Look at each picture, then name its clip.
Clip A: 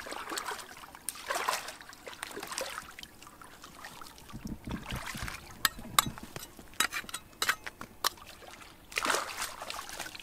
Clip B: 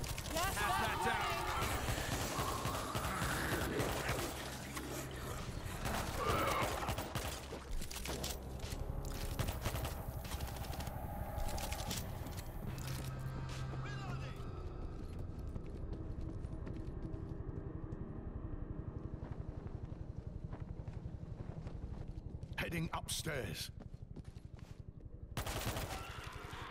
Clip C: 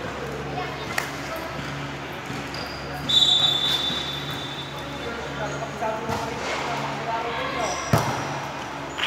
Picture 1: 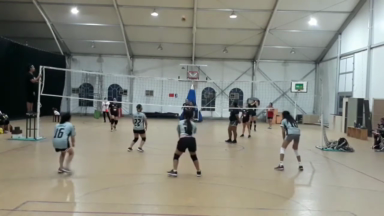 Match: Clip C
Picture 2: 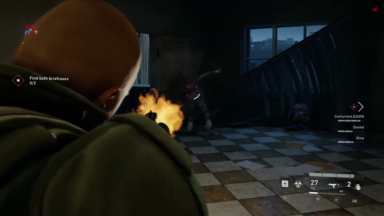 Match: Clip B